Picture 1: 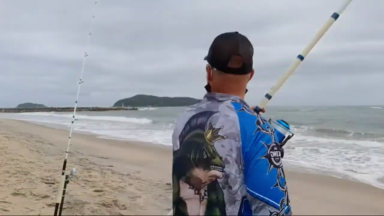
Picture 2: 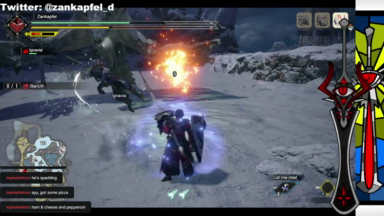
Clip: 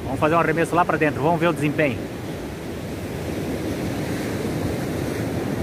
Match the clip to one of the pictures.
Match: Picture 1